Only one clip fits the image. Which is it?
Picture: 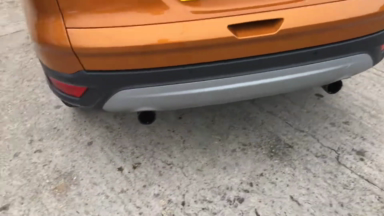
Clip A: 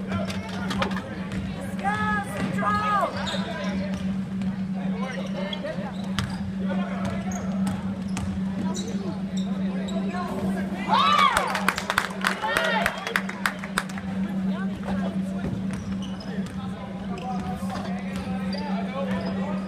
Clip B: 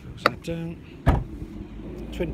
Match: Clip B